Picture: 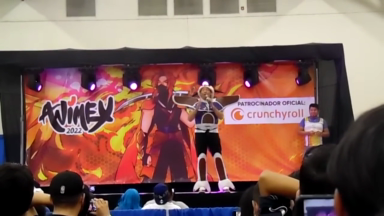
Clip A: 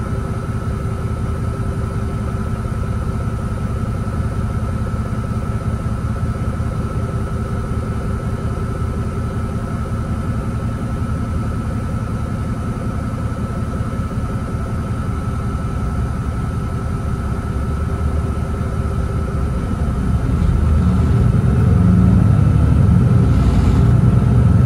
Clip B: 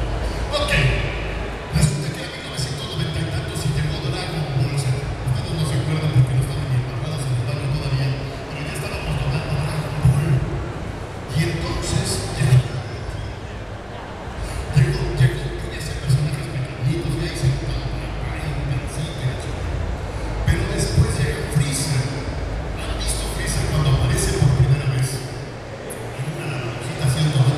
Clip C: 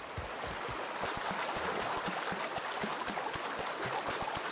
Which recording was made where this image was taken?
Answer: B